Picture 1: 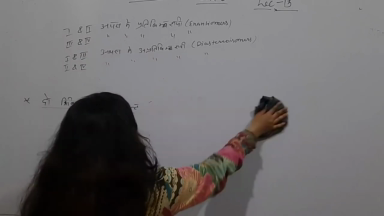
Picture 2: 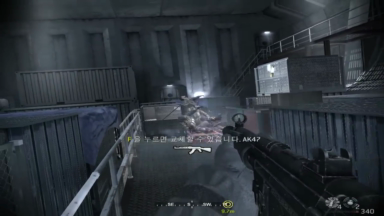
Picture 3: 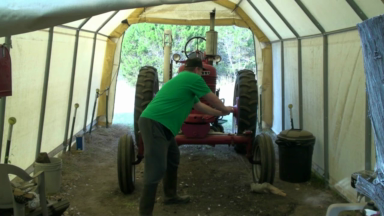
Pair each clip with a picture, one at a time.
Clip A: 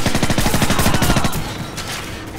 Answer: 2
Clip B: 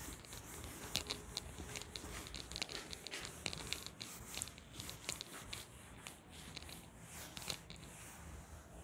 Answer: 1